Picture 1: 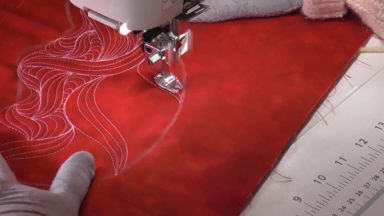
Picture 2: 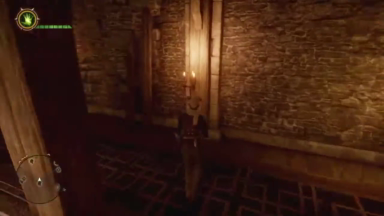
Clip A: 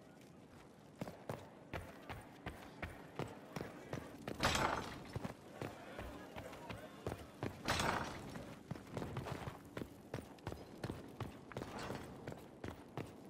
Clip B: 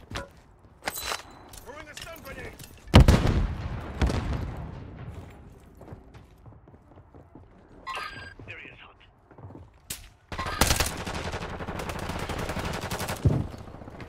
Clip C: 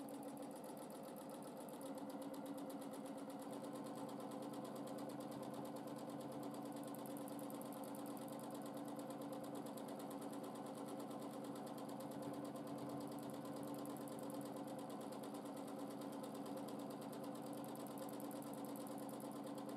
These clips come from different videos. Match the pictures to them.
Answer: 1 C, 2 A